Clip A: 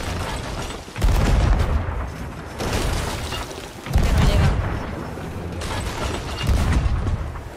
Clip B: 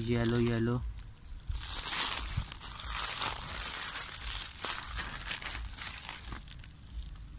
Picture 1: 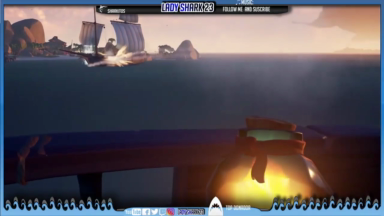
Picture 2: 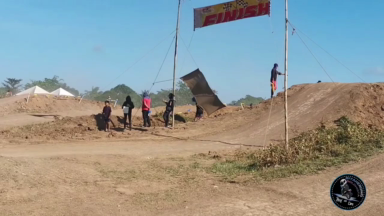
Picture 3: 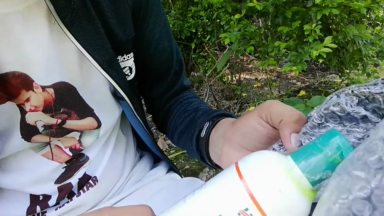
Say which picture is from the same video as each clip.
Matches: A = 1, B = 3